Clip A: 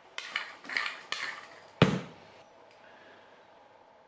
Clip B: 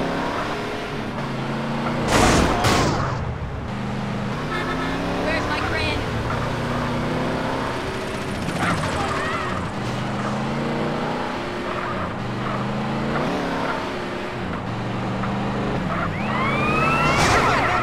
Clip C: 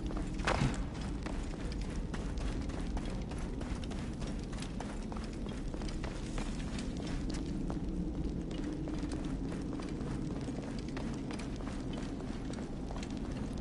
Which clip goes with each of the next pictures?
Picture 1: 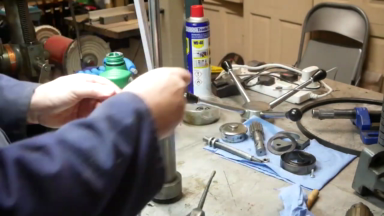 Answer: A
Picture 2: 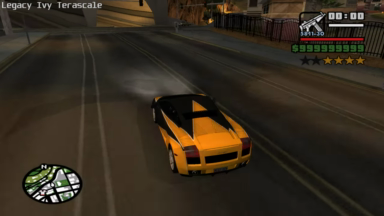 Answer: B